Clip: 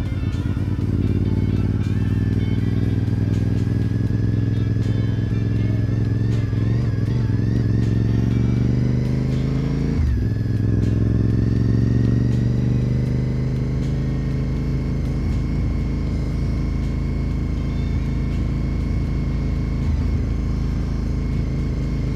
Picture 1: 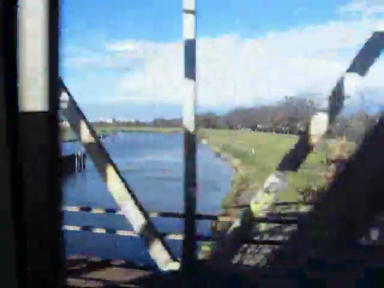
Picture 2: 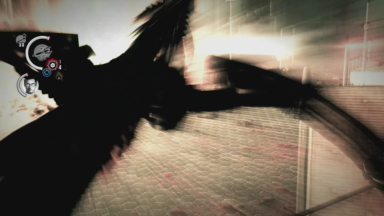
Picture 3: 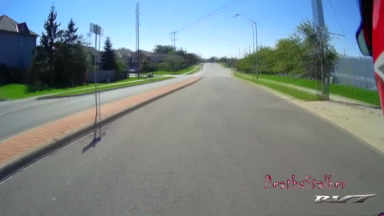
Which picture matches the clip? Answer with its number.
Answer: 3